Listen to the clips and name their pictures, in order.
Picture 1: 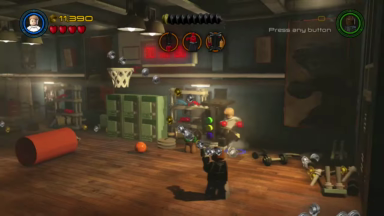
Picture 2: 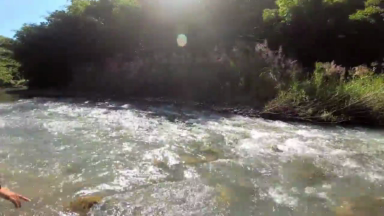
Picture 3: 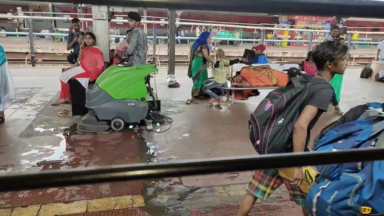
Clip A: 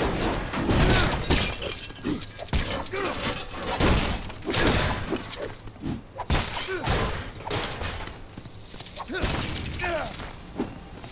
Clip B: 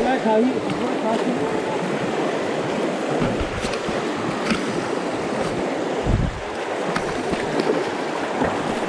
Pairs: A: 1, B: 2